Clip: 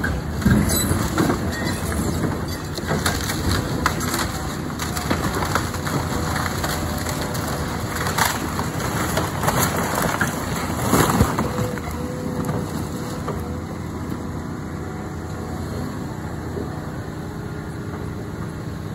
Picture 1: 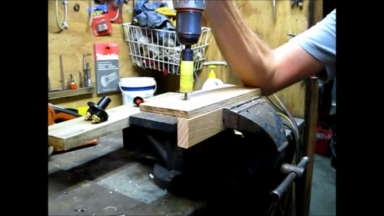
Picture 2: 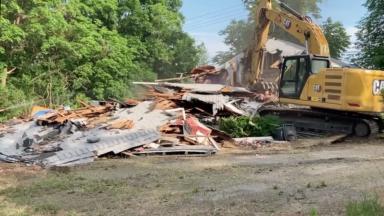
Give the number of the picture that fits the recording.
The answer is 2